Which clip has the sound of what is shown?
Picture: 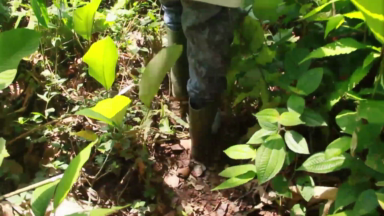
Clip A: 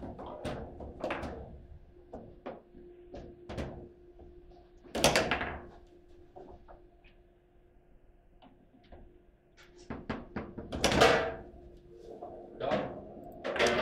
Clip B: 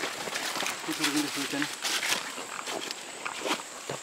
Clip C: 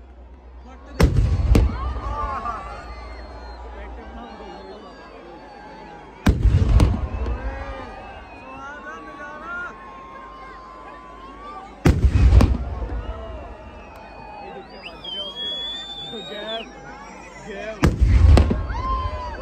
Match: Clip B